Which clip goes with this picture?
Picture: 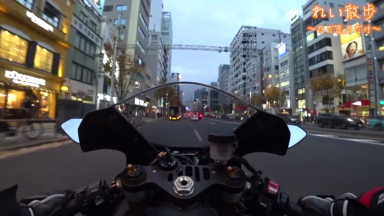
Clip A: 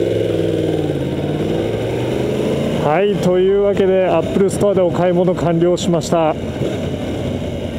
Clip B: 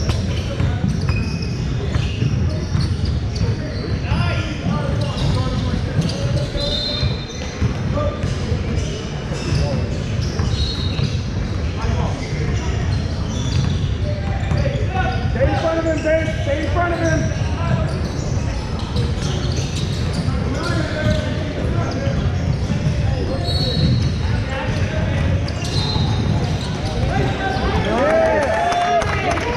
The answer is A